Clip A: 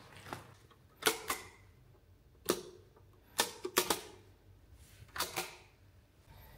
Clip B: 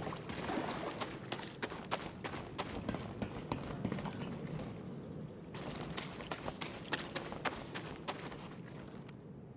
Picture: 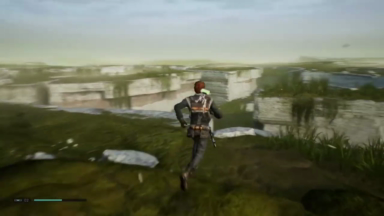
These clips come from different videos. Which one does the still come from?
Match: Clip B